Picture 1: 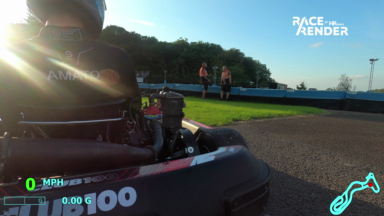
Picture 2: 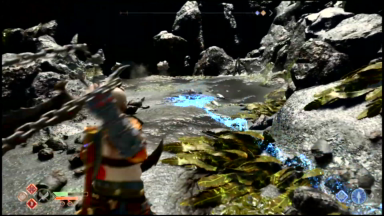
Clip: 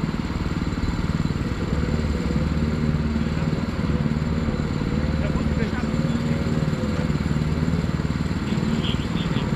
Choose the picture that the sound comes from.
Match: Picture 1